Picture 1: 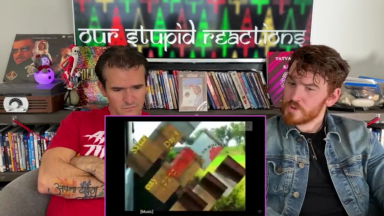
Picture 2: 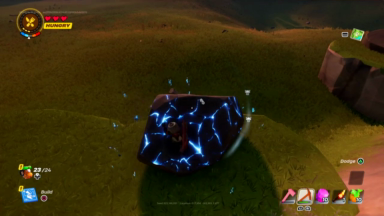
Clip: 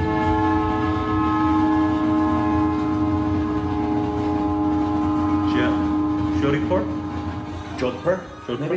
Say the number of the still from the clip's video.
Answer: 1